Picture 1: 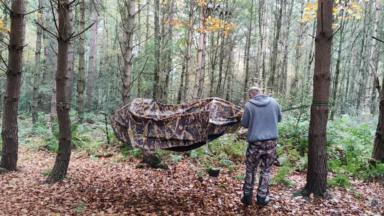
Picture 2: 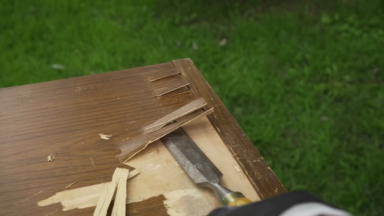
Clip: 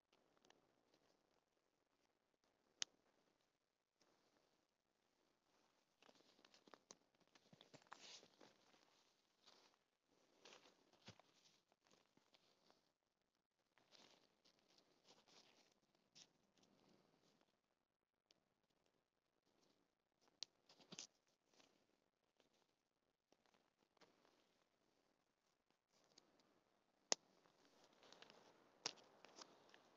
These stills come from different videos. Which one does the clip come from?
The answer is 1